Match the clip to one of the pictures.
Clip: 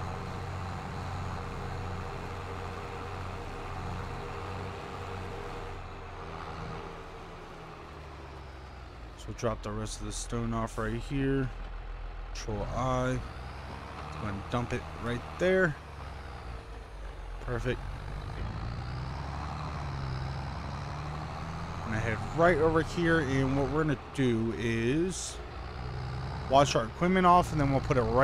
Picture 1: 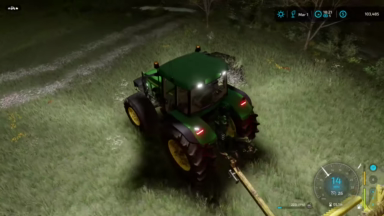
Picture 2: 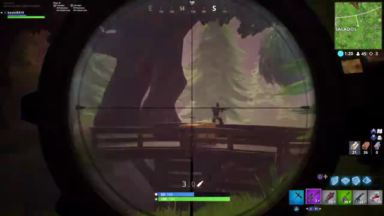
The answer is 1